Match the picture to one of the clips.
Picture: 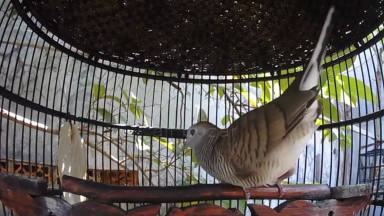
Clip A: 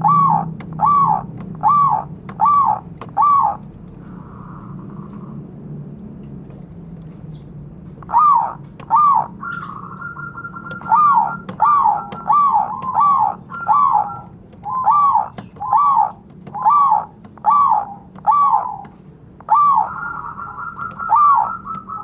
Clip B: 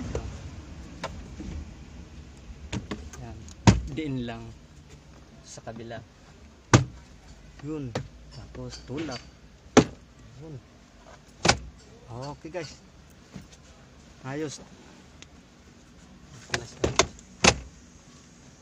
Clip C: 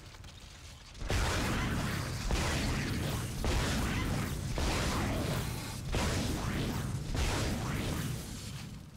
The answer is A